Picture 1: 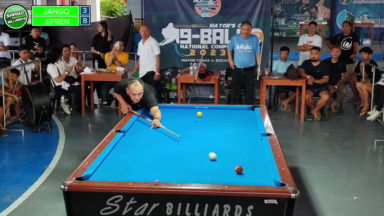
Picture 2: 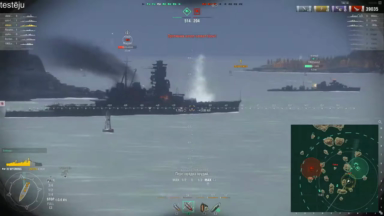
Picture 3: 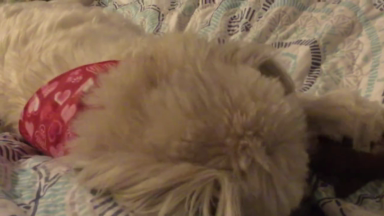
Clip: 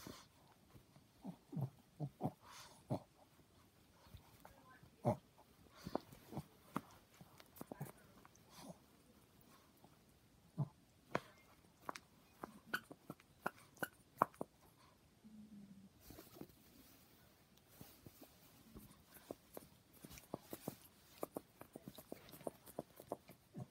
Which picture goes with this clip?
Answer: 3